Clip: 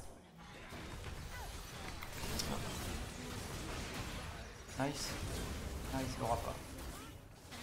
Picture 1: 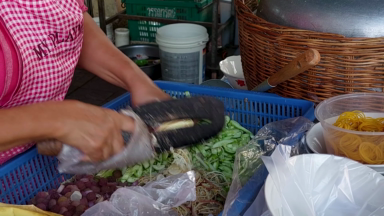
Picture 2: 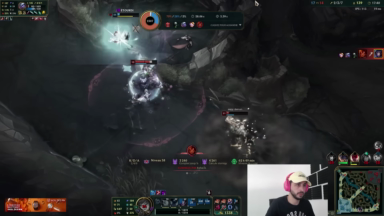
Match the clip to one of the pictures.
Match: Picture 2